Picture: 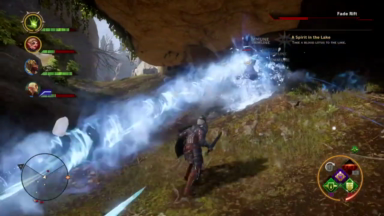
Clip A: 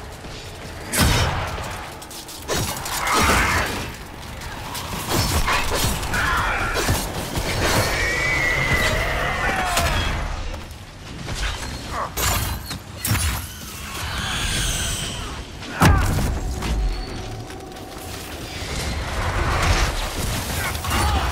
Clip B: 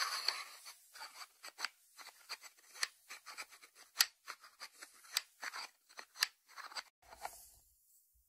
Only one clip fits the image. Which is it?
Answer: A